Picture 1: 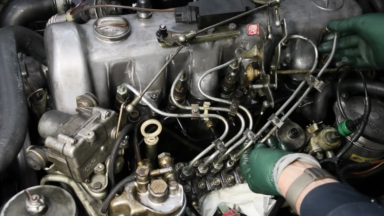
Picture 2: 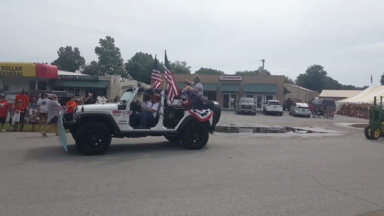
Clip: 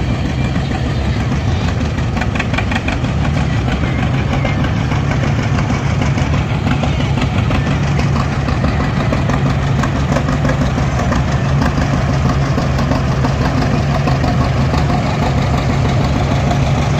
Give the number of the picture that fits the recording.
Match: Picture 2